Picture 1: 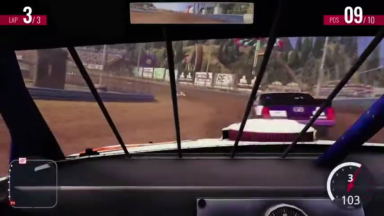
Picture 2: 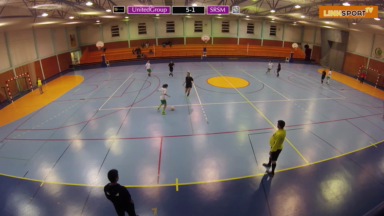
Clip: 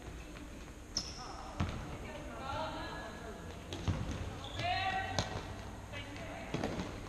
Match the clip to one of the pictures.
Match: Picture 2